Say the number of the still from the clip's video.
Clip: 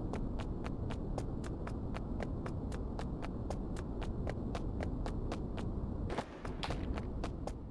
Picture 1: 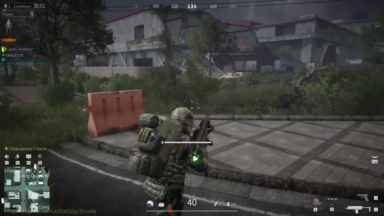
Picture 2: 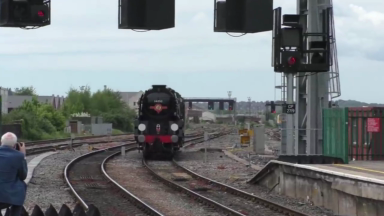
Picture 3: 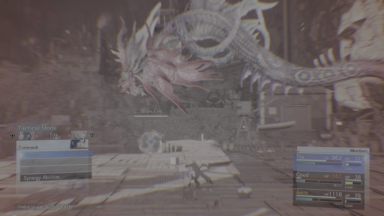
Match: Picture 1